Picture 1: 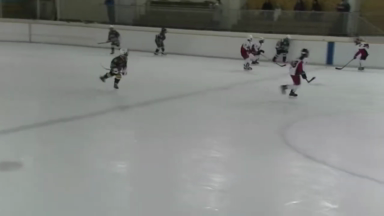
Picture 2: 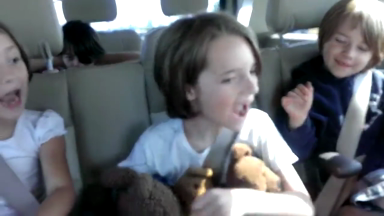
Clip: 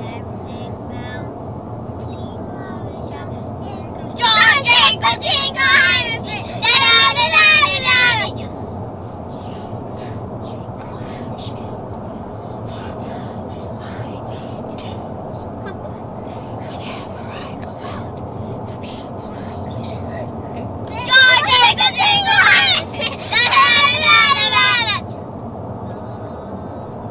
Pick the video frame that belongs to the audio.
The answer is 2